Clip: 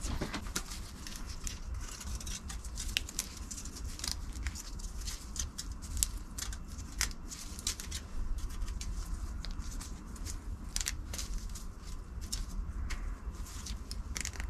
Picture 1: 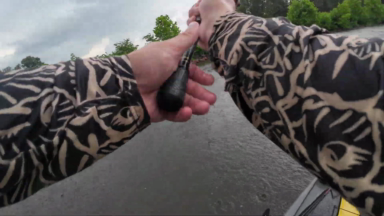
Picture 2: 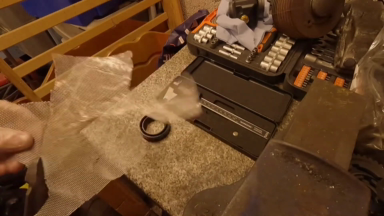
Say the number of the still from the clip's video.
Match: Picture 2